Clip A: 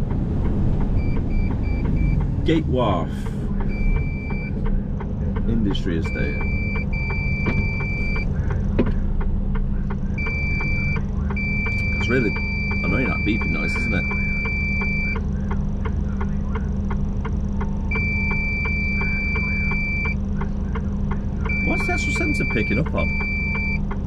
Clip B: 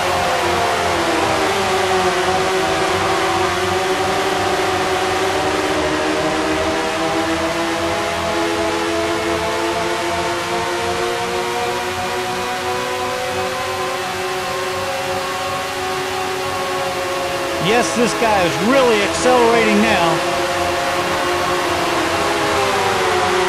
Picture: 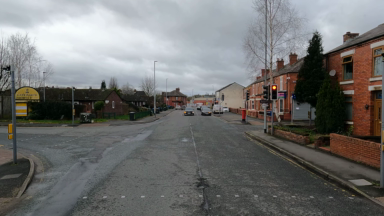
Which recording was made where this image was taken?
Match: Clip A